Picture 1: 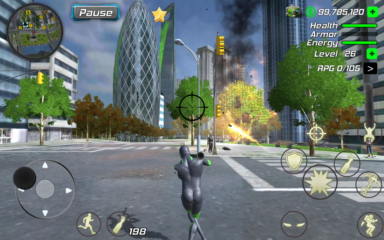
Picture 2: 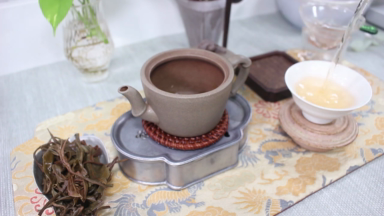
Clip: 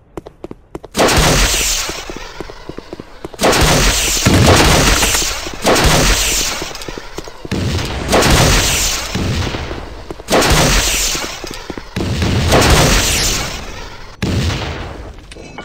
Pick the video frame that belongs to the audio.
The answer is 1